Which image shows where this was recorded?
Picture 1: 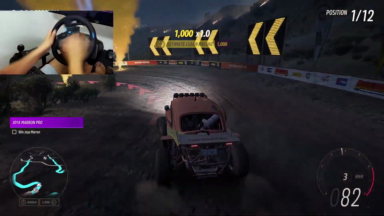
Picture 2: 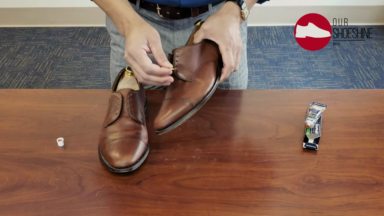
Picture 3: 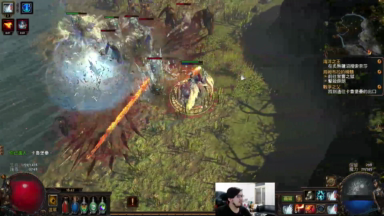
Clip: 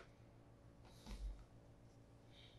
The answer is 2